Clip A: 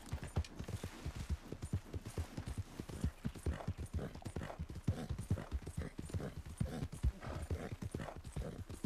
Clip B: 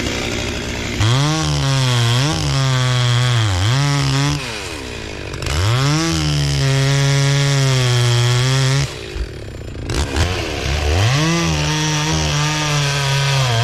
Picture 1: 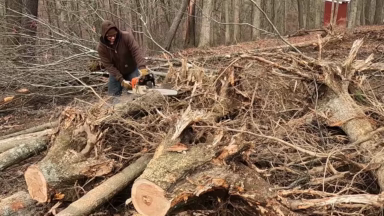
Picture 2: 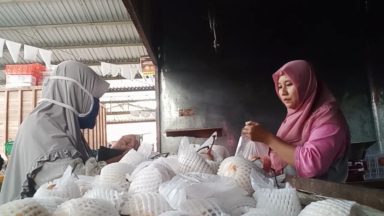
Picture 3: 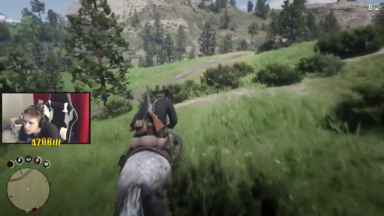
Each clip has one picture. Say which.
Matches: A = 3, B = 1